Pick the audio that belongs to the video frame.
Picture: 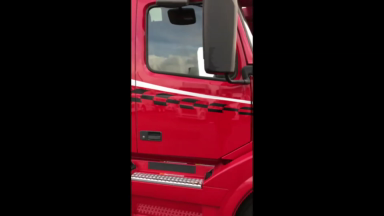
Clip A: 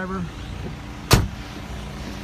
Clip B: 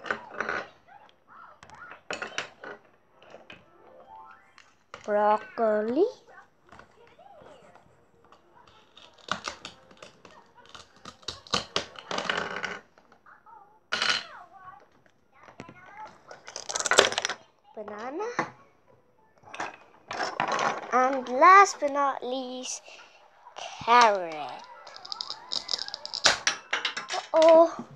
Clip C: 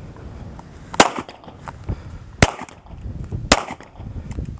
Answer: A